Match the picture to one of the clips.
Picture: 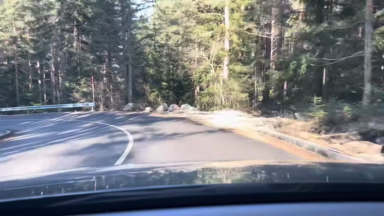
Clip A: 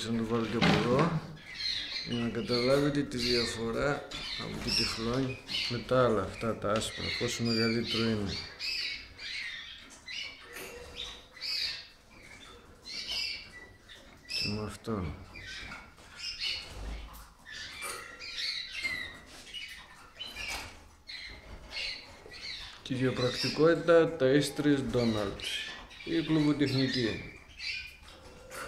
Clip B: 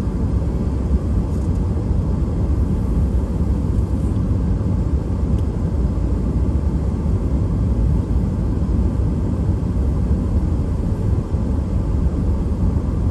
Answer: B